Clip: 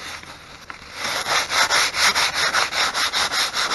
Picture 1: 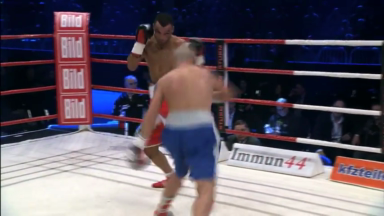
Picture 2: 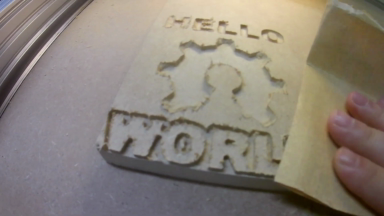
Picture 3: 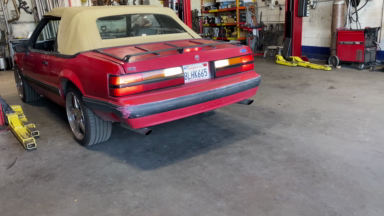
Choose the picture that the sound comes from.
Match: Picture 2